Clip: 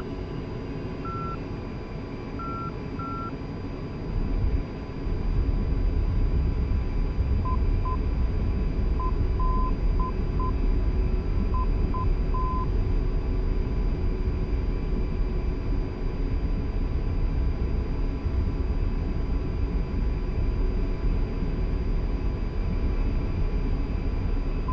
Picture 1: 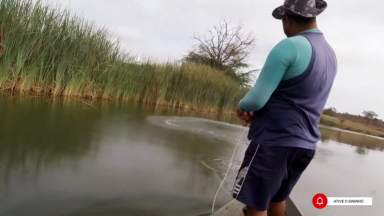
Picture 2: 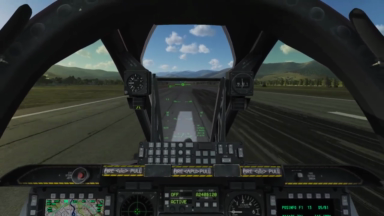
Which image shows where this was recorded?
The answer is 2